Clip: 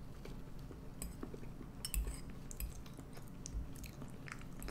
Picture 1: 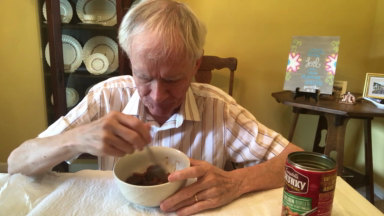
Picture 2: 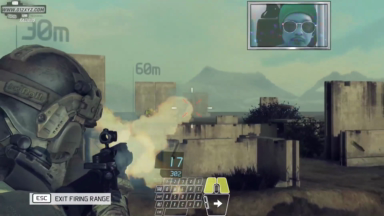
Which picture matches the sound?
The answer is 1